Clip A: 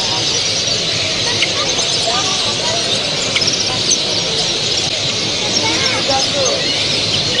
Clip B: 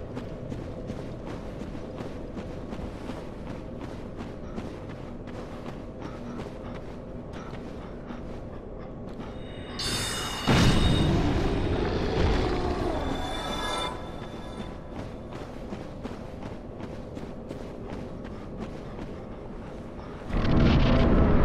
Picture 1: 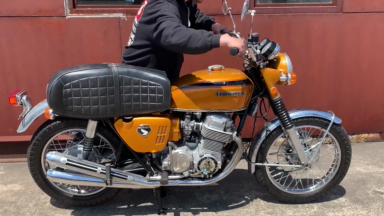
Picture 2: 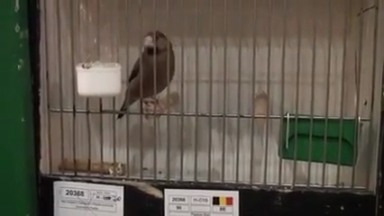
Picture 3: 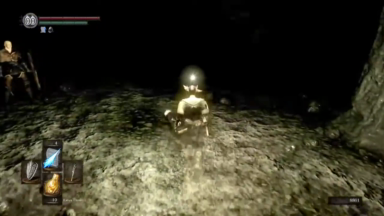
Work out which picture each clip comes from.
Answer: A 2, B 3